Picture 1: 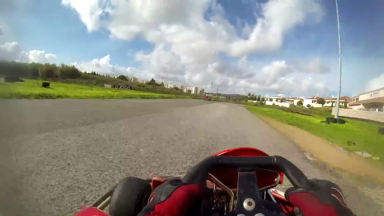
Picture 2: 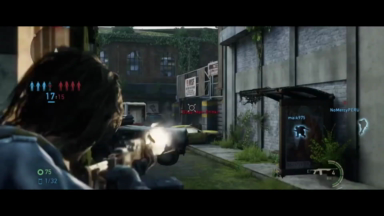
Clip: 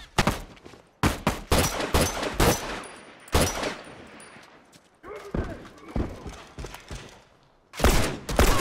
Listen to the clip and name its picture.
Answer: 2